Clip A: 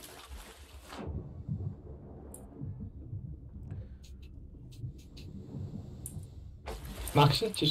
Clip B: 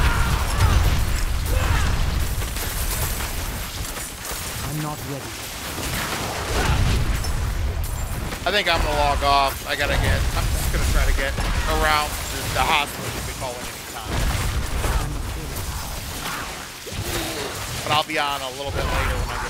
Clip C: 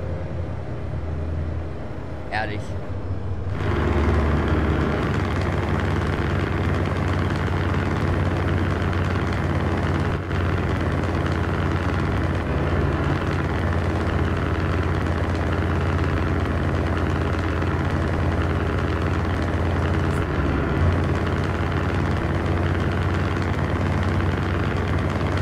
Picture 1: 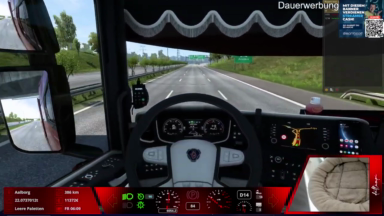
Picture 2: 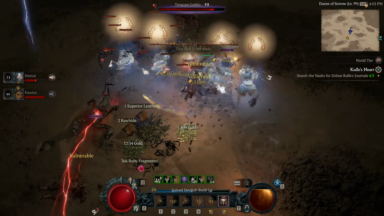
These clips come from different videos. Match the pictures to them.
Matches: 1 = C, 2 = B